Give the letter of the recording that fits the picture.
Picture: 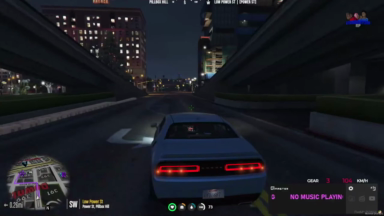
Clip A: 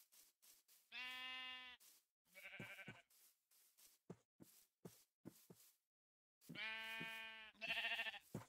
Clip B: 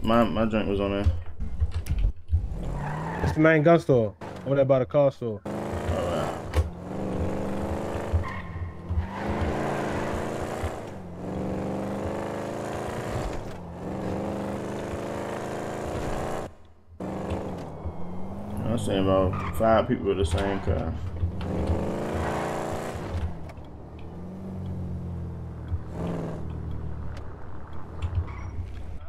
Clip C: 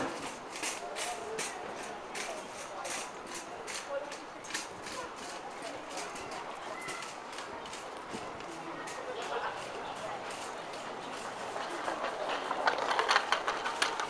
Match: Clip B